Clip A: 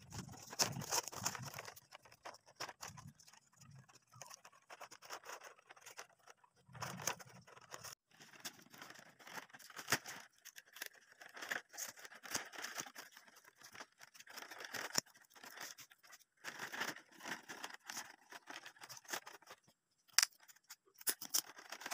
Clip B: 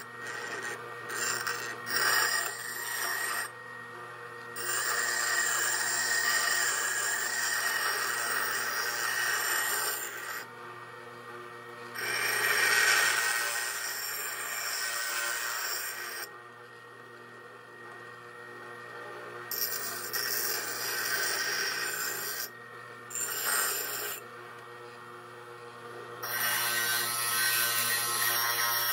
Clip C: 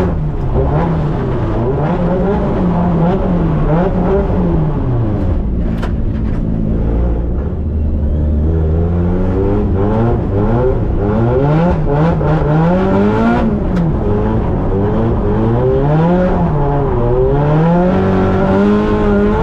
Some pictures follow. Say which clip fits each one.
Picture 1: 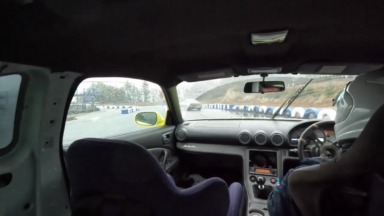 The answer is C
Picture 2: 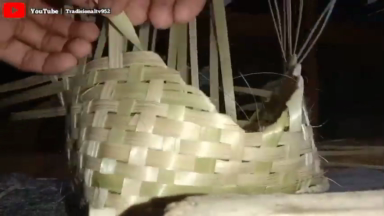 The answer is A